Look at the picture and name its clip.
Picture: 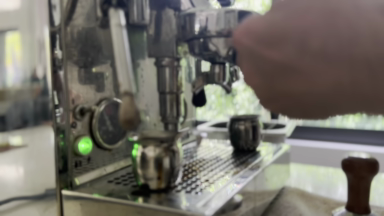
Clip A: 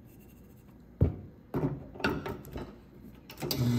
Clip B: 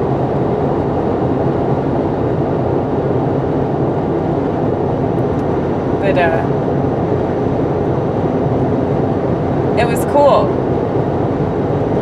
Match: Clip A